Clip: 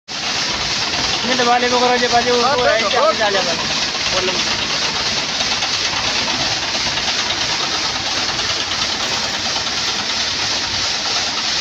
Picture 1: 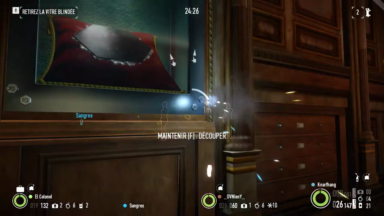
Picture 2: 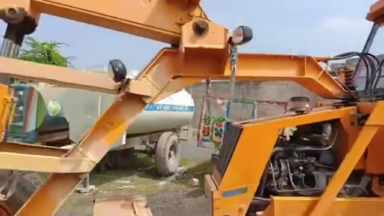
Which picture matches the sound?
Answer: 2